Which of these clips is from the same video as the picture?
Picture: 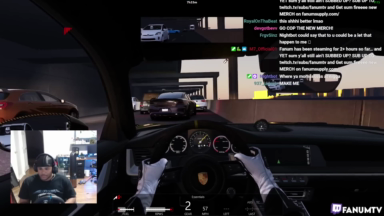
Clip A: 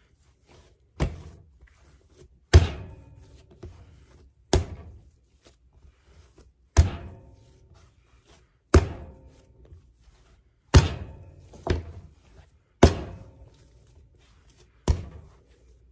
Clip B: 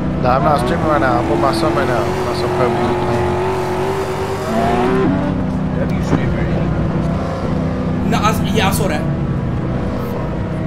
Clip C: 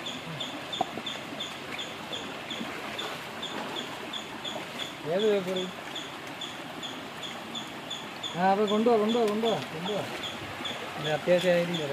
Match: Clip B